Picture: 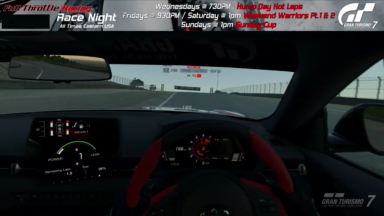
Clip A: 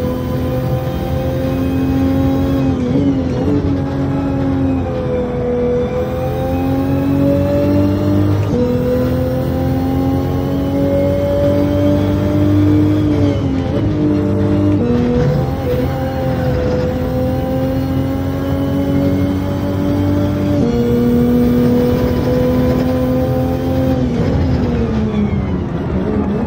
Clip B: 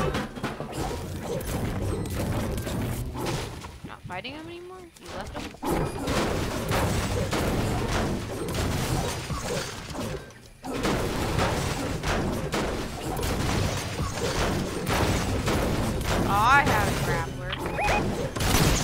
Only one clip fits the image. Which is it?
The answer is A